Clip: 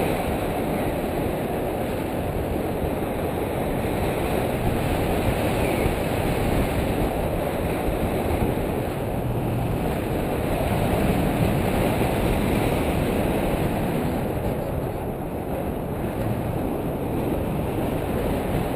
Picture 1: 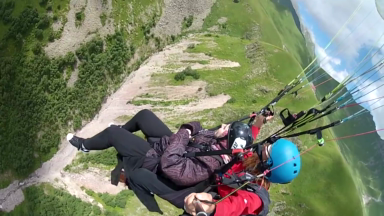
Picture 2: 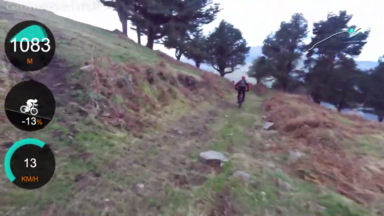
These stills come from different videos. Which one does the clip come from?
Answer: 1